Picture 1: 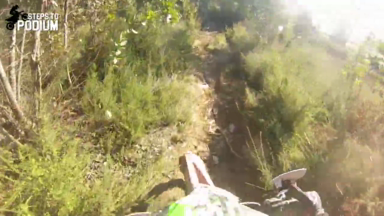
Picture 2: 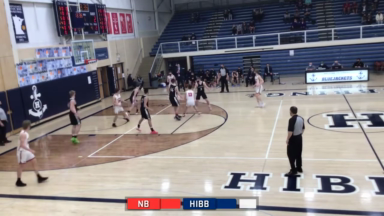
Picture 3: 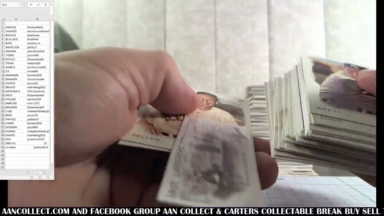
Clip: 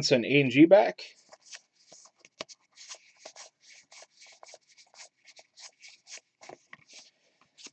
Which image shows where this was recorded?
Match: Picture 3